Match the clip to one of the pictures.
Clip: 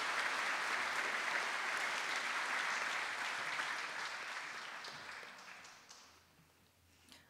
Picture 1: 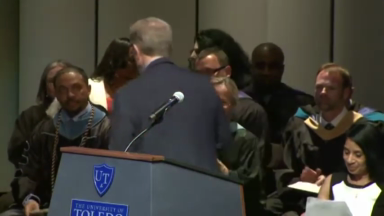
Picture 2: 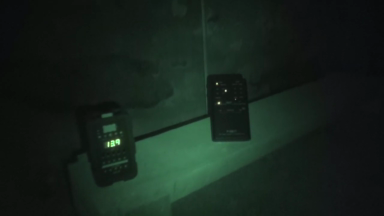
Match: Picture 1